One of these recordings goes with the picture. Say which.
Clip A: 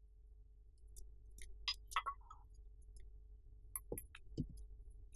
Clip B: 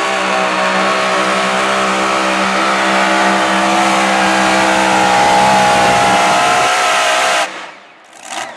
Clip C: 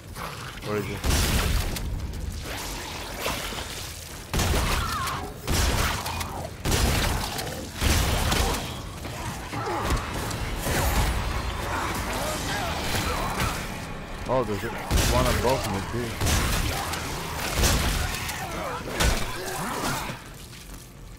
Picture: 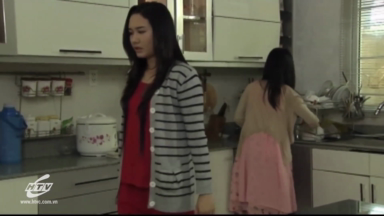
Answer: A